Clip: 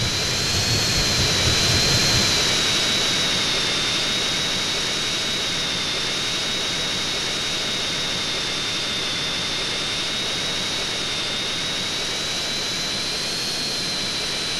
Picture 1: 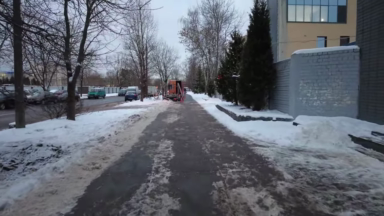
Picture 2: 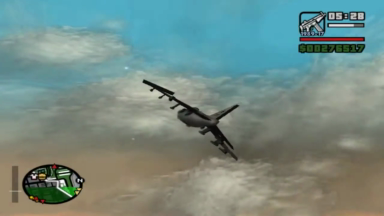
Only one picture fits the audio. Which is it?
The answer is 2